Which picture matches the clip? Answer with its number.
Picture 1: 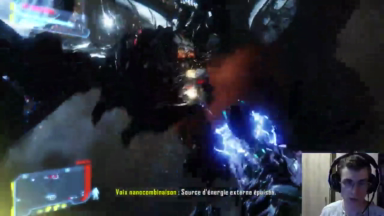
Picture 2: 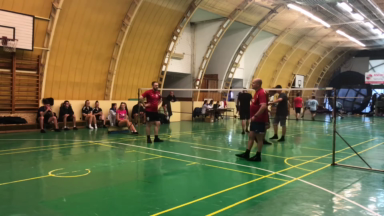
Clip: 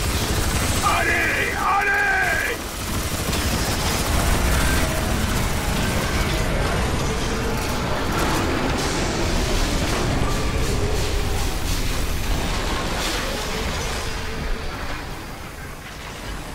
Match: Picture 1